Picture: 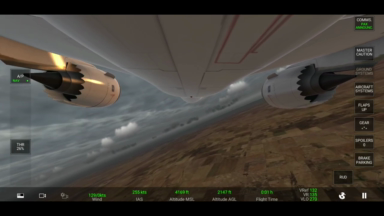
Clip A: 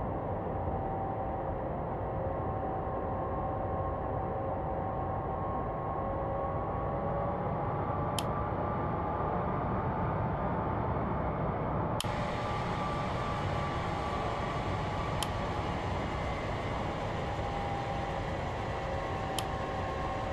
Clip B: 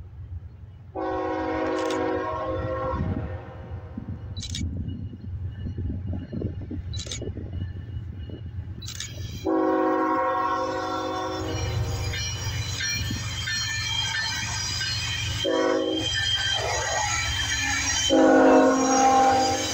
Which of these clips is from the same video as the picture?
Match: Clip A